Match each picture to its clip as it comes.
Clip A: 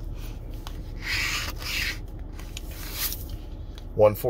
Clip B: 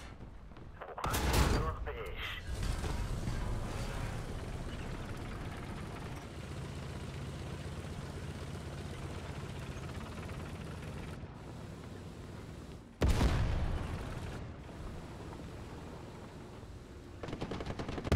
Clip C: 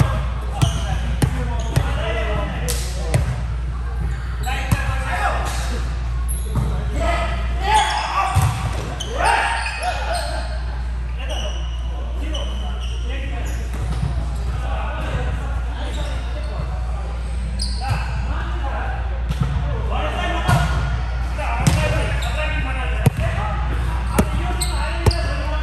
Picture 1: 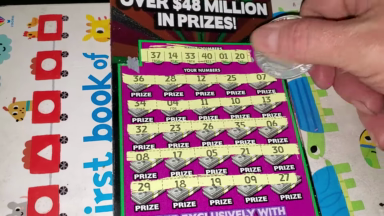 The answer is A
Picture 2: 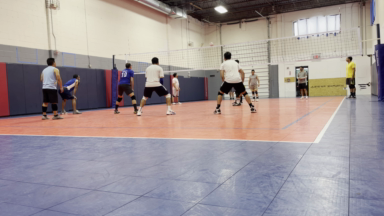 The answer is C